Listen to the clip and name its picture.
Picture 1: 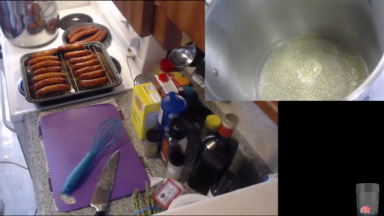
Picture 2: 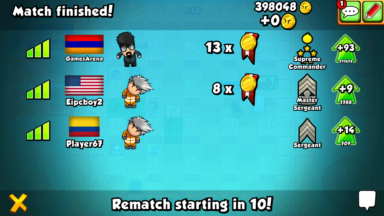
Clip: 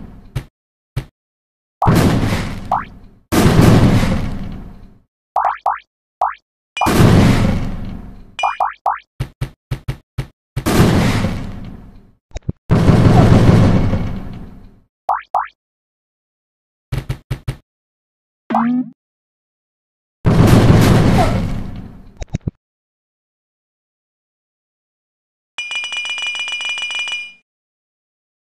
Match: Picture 2